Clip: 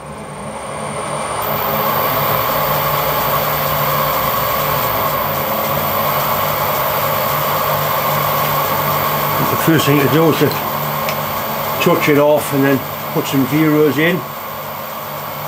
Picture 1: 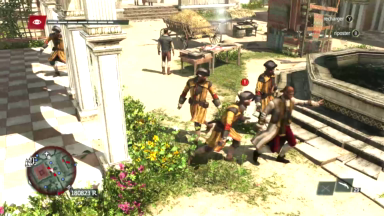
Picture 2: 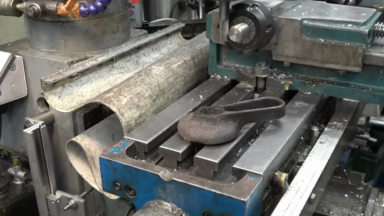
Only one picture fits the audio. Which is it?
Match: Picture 2